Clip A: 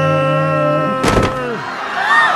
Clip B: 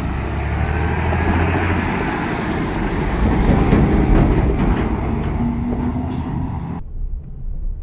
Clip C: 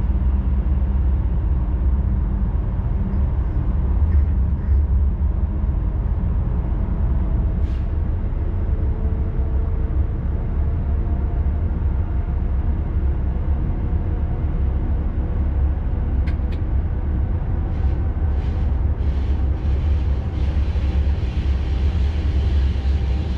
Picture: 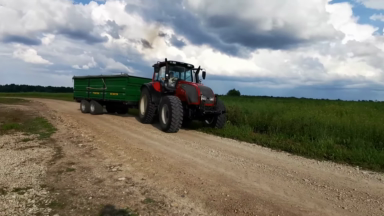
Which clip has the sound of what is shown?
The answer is B